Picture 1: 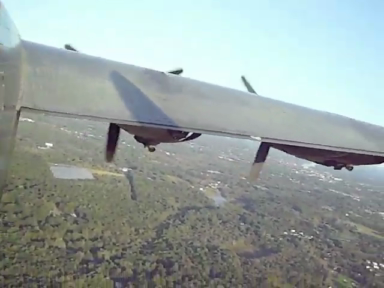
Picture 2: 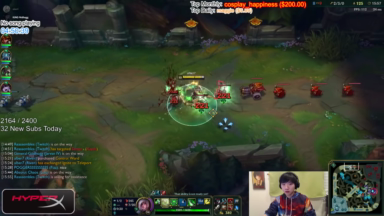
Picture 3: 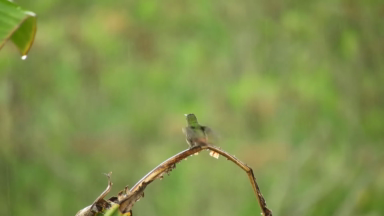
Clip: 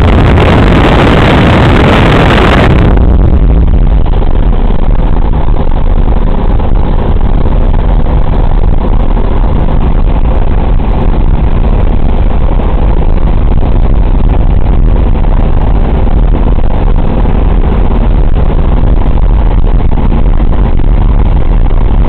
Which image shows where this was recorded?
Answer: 1